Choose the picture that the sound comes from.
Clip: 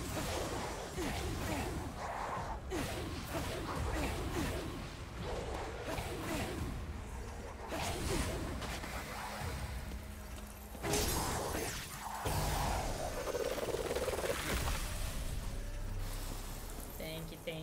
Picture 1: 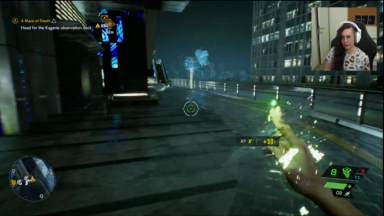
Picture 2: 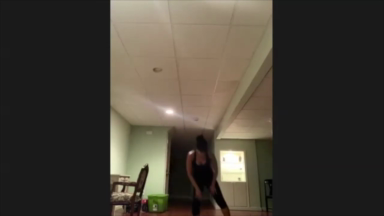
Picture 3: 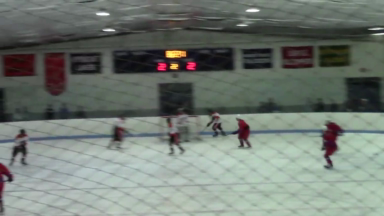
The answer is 1